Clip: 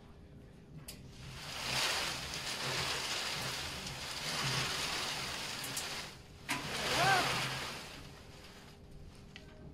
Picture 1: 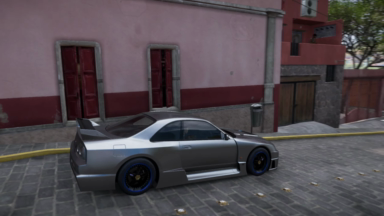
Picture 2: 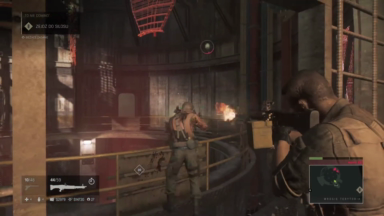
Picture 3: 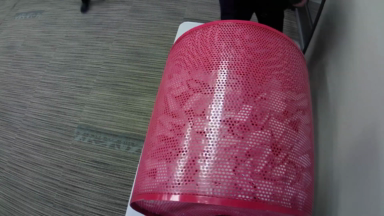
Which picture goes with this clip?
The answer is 3